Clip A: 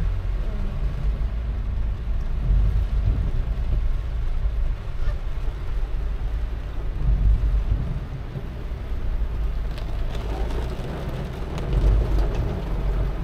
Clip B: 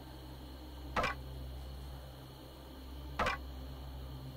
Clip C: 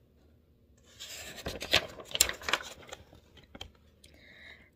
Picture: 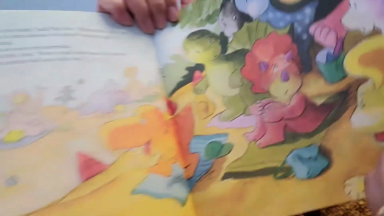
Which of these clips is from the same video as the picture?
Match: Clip C